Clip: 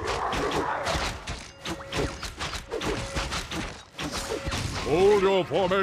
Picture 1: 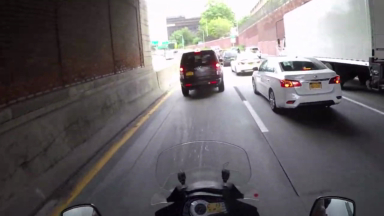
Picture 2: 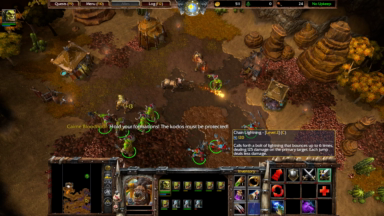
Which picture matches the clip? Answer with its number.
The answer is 2